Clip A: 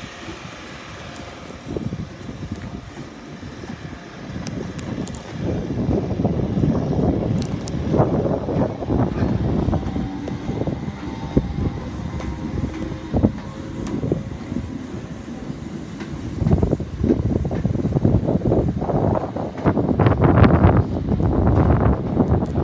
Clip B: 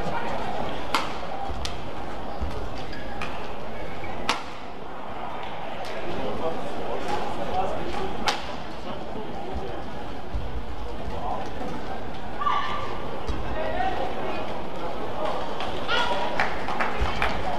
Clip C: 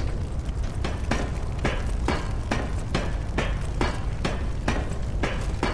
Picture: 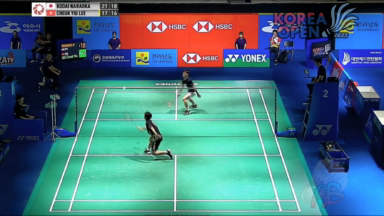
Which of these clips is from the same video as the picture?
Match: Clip B